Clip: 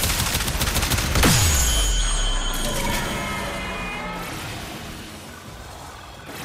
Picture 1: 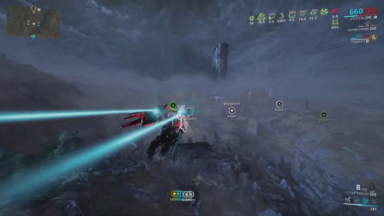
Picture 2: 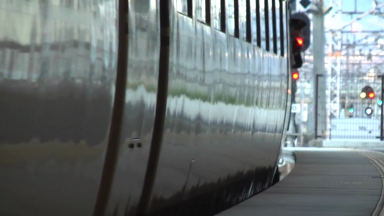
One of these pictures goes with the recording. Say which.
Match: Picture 1